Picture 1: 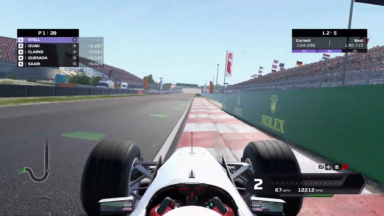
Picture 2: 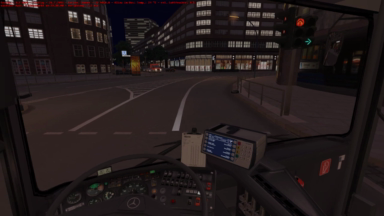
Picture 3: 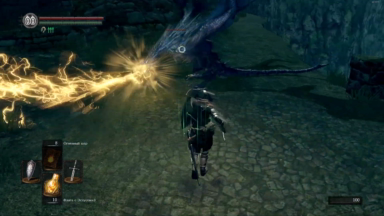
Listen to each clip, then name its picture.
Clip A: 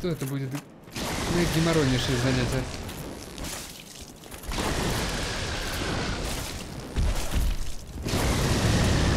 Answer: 3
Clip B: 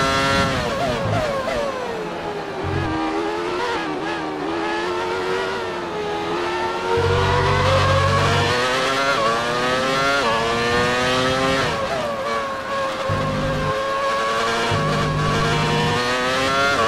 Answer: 1